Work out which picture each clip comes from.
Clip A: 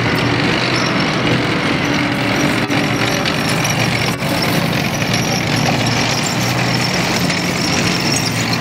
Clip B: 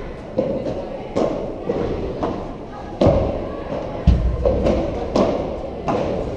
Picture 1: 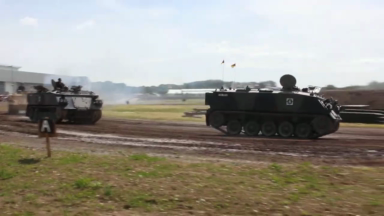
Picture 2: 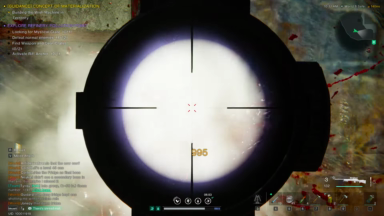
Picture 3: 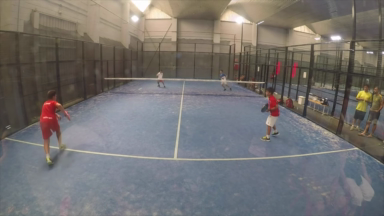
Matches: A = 1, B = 3